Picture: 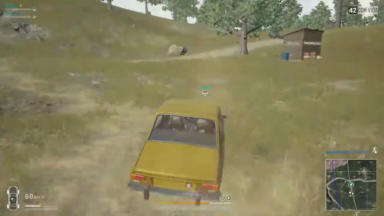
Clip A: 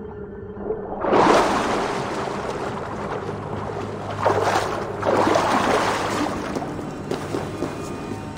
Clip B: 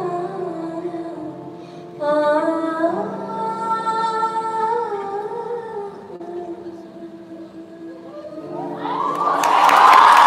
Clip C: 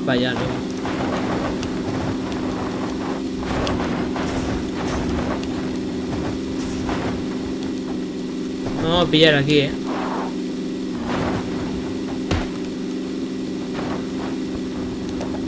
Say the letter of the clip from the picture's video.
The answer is C